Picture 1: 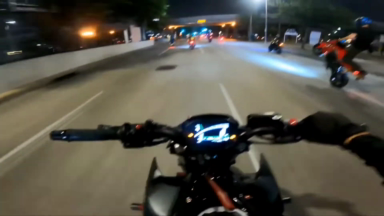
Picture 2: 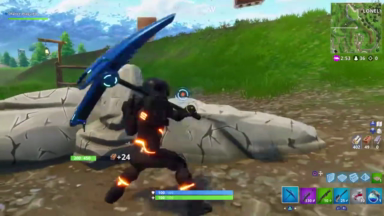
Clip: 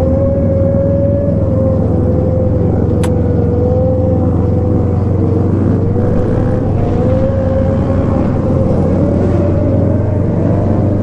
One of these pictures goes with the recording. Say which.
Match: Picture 1